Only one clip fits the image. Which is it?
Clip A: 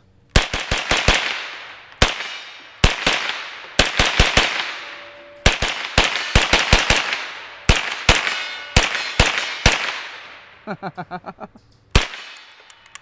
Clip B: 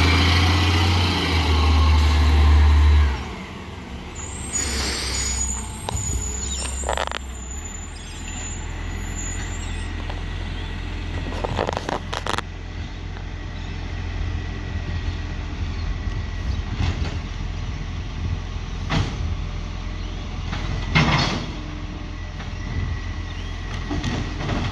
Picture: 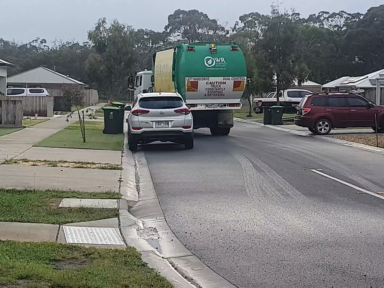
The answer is B